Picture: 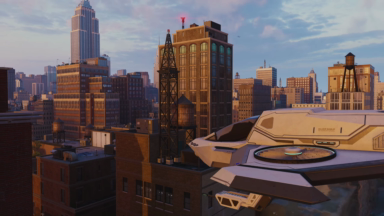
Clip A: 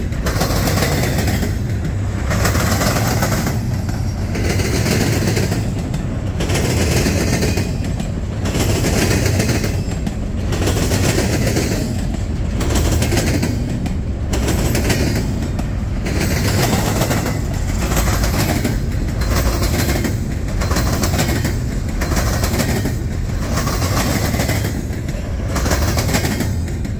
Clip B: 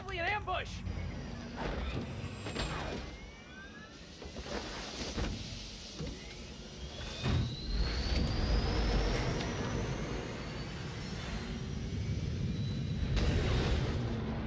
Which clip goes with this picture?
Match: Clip B